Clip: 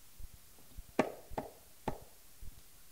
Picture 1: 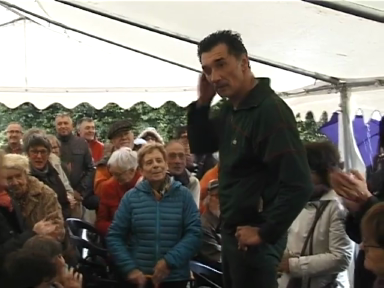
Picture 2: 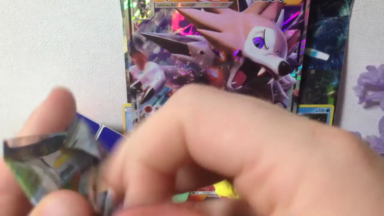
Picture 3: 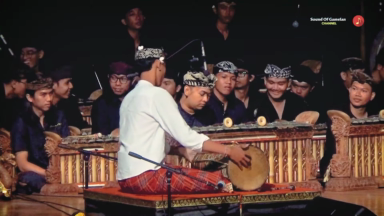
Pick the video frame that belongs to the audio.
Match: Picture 3